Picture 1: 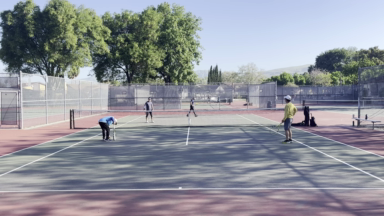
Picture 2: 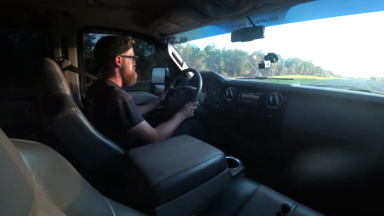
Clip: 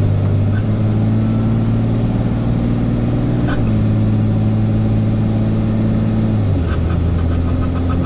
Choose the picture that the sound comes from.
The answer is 2